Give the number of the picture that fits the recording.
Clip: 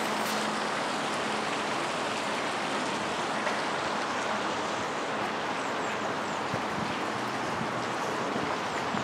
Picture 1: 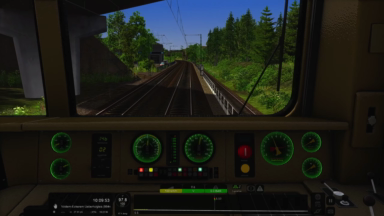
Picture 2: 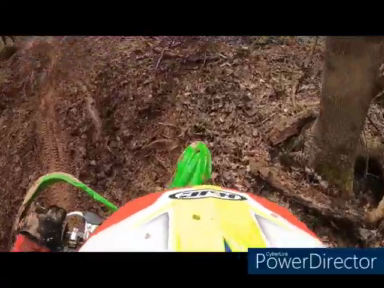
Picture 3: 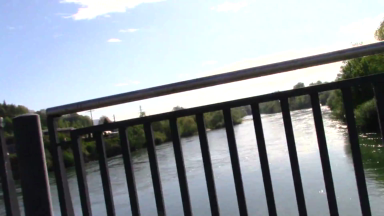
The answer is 3